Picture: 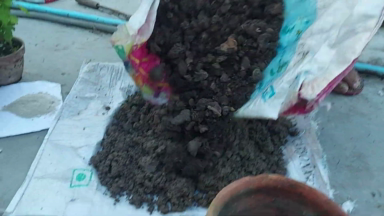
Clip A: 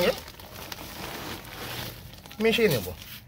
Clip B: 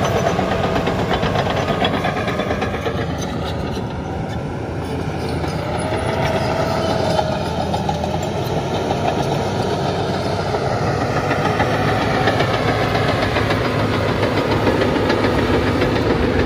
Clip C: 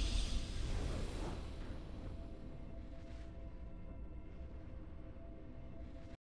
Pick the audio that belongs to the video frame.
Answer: A